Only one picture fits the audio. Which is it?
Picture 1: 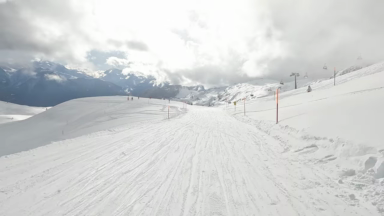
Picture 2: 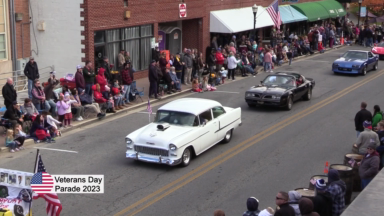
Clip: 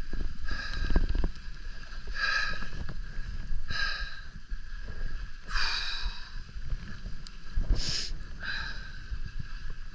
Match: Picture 1